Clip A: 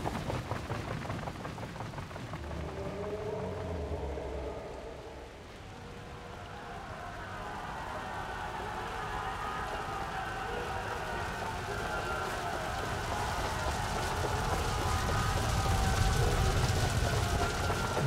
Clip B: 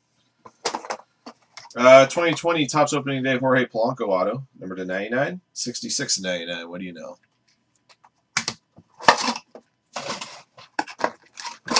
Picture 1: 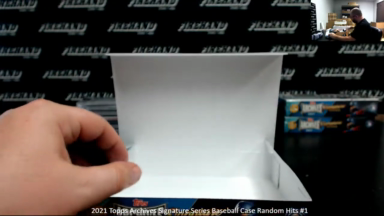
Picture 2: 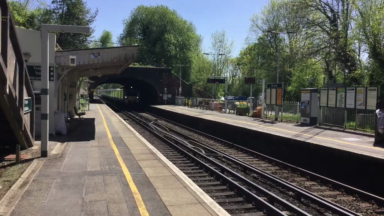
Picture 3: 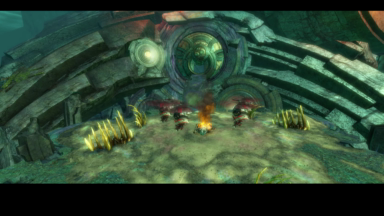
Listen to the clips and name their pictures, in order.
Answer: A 3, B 1